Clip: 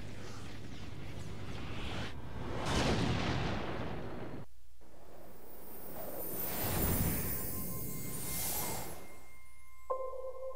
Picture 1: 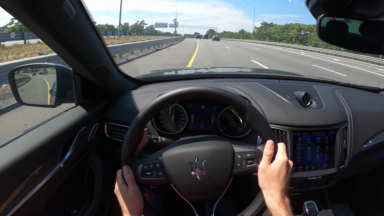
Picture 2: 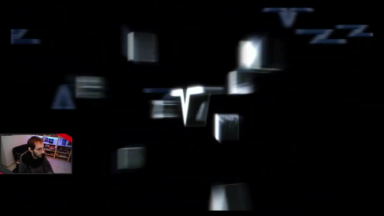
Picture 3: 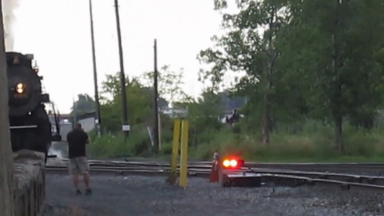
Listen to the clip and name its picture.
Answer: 2